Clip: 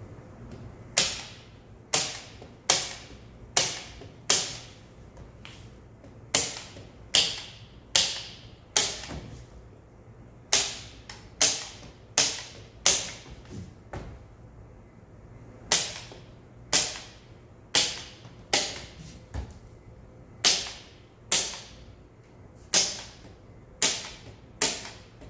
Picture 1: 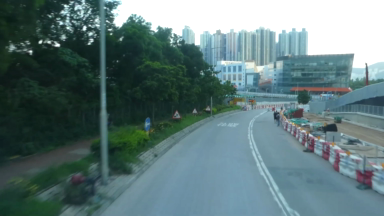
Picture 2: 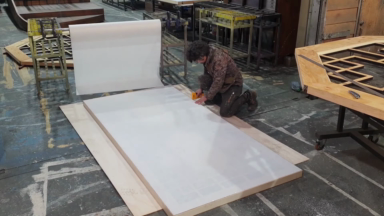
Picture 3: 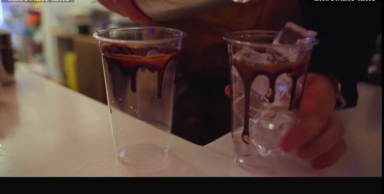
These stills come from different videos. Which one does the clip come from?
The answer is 2